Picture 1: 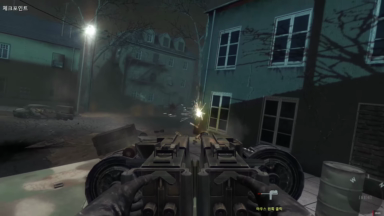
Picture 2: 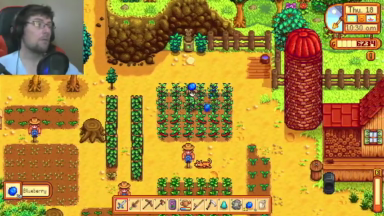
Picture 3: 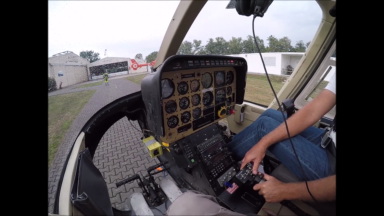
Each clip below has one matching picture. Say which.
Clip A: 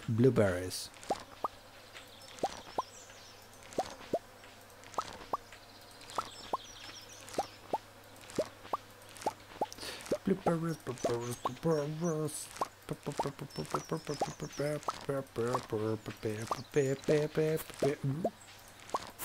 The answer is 2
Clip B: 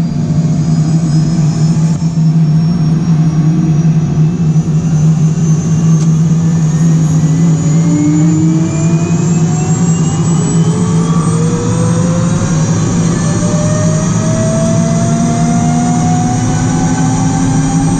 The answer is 3